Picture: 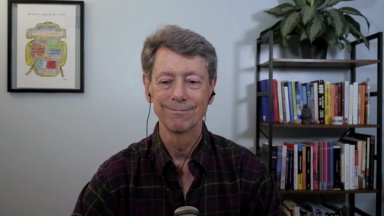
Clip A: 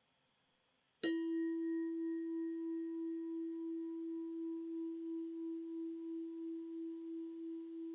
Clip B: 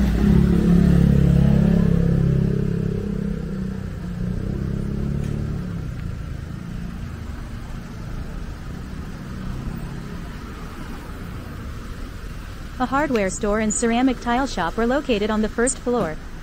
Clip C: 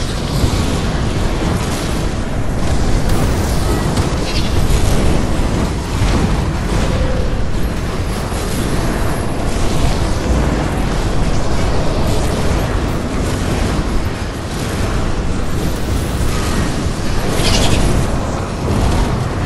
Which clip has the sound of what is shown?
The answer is A